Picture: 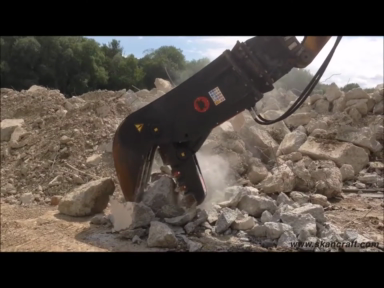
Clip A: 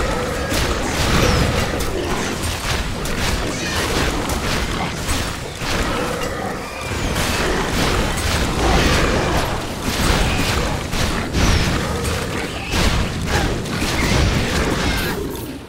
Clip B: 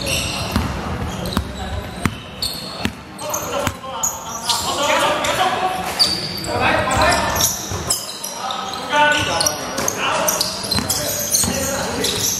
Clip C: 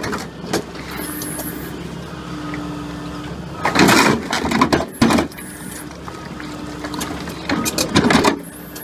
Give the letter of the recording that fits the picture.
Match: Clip C